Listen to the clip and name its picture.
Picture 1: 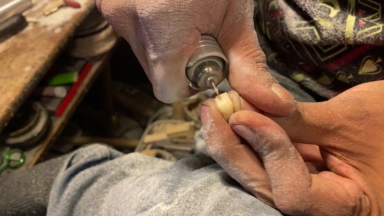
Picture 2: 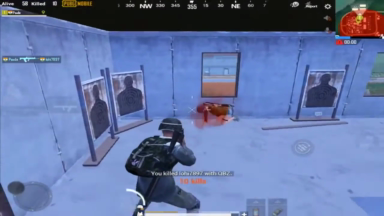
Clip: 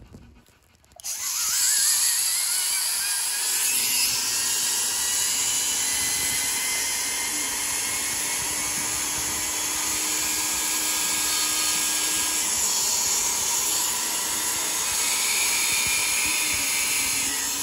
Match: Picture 1